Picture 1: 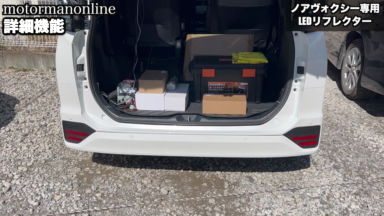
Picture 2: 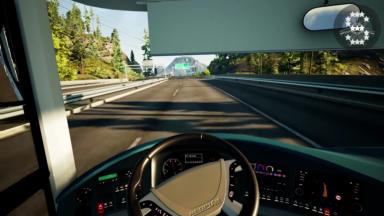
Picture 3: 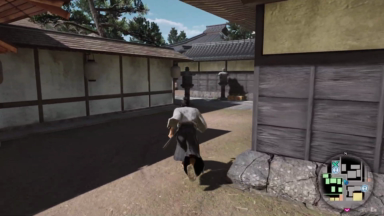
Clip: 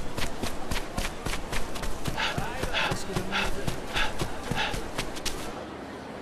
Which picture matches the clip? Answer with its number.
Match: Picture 3